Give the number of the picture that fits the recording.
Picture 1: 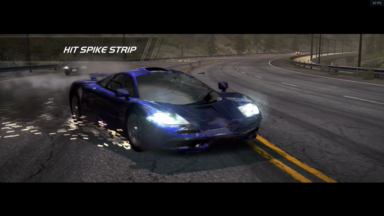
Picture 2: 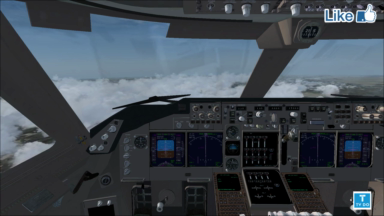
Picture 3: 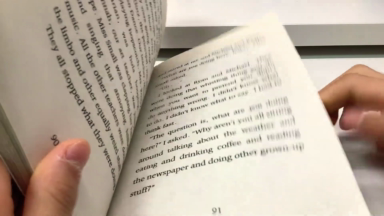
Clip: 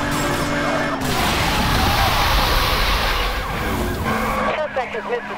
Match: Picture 1